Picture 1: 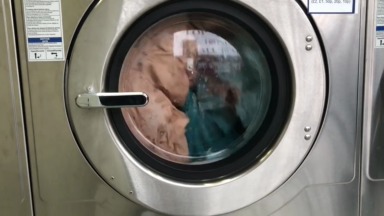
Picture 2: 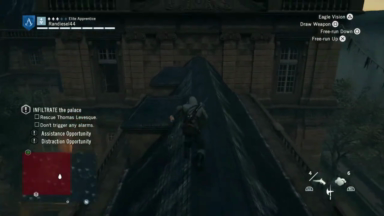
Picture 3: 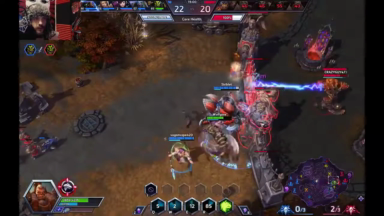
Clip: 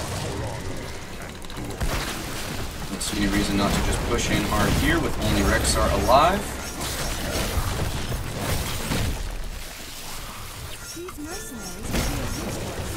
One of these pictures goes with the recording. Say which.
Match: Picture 3